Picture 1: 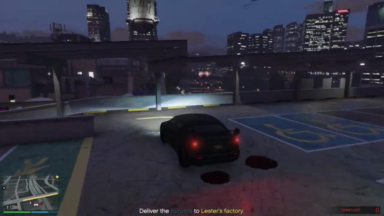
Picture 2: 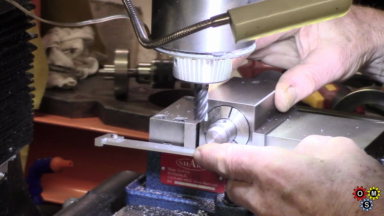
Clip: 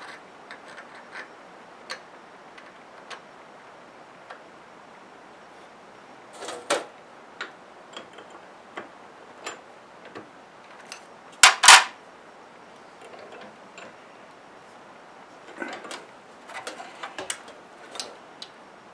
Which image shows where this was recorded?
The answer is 2